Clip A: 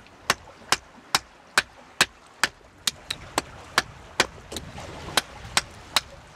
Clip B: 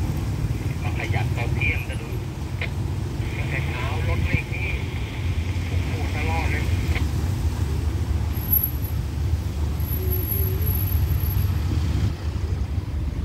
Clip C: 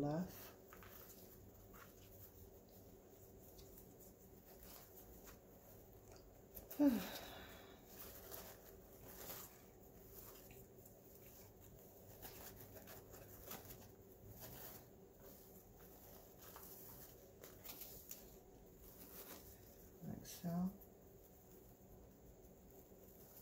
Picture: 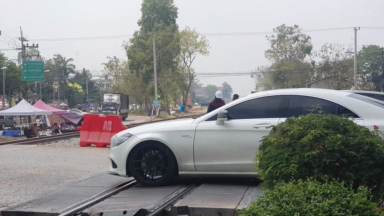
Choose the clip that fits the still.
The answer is B